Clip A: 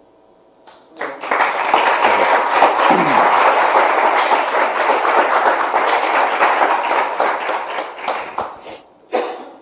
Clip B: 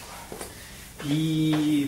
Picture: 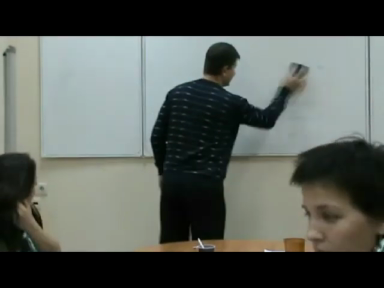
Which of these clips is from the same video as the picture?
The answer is B